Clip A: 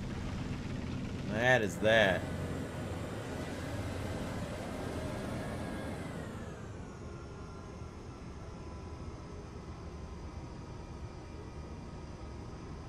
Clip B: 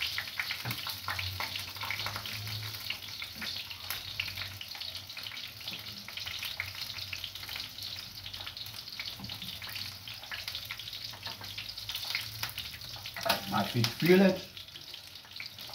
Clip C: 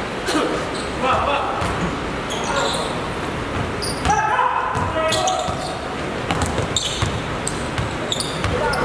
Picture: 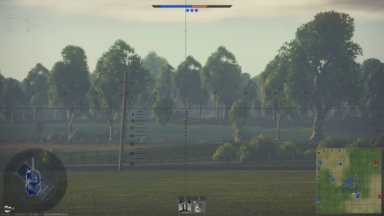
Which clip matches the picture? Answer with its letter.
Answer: A